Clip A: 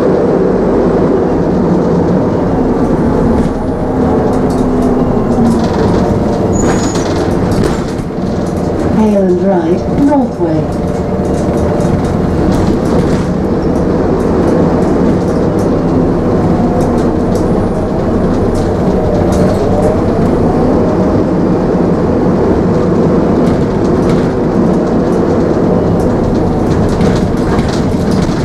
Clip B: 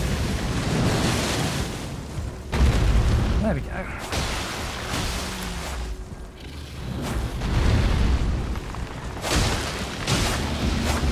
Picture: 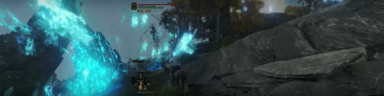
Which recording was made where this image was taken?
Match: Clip B